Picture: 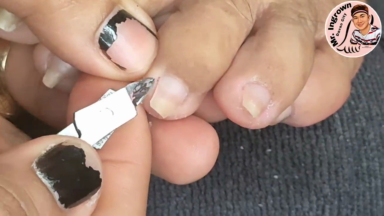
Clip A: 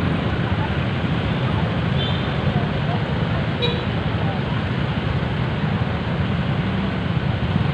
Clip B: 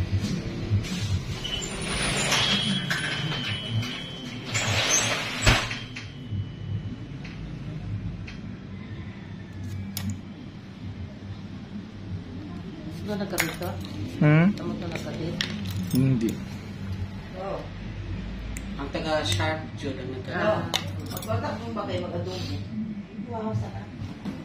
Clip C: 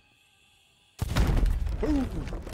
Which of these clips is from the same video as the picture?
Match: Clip B